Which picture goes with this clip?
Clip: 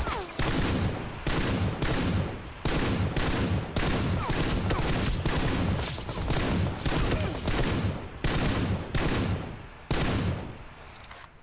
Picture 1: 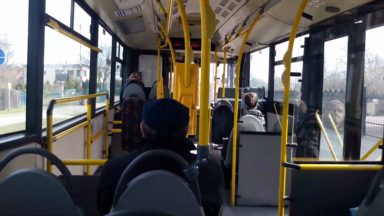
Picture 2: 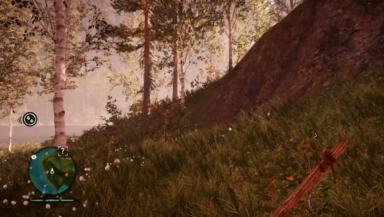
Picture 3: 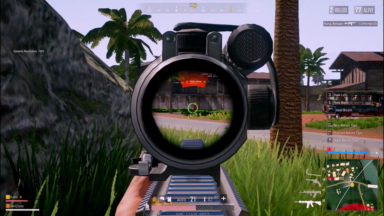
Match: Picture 3